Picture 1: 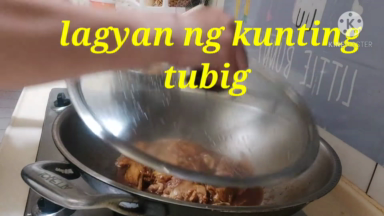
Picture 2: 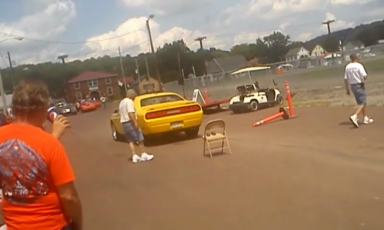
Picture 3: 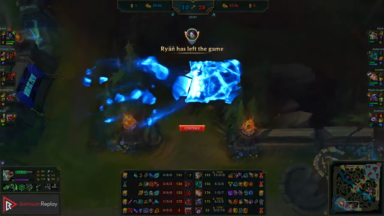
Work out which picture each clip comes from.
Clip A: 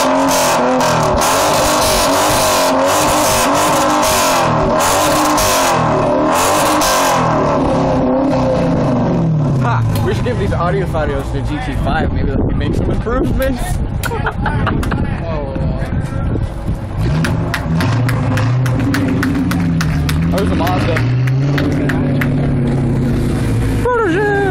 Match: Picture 2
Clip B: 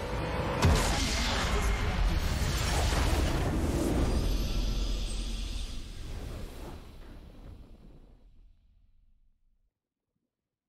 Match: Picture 3